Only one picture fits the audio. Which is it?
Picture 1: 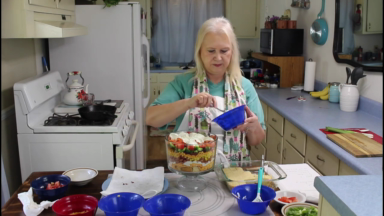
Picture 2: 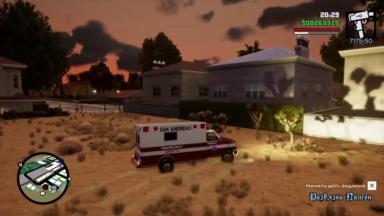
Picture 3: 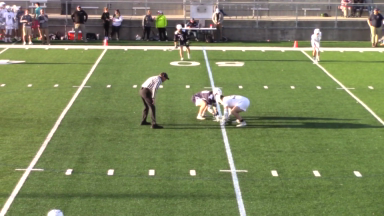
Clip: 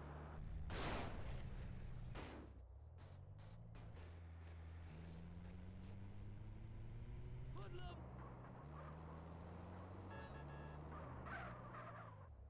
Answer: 2